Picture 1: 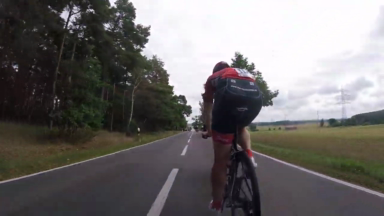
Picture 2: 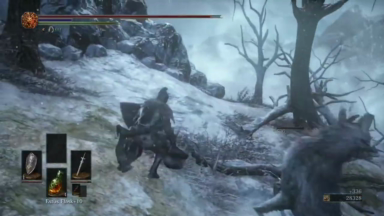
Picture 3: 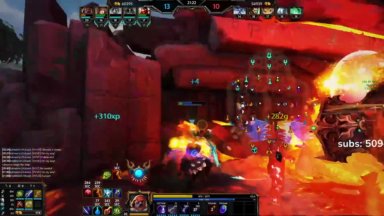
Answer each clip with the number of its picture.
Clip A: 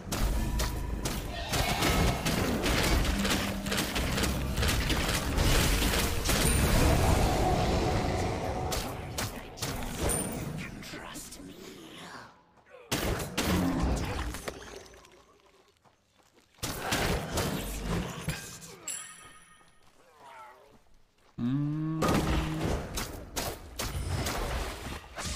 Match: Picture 3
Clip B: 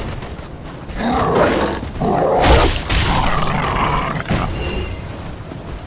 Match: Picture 2